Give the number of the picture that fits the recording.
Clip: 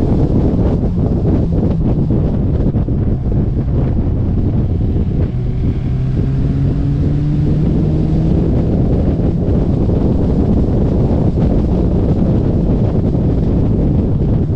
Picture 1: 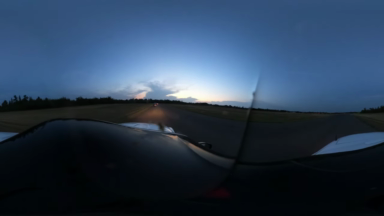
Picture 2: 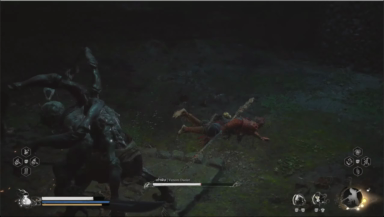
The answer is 1